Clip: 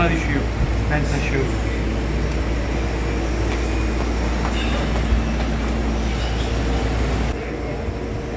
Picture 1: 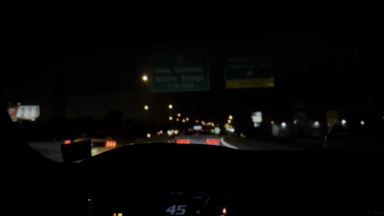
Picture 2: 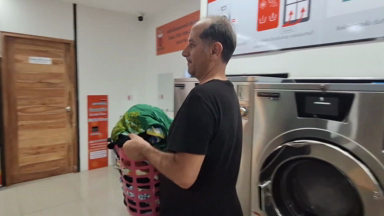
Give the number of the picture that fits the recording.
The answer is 2